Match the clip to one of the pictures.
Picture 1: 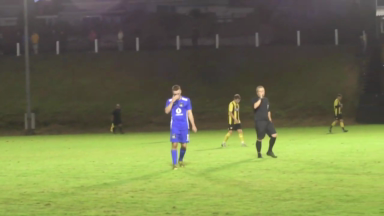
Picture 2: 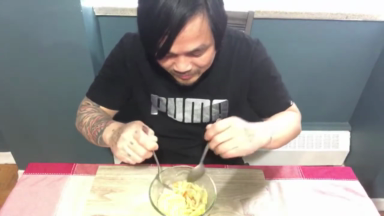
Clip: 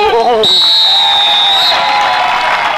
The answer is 1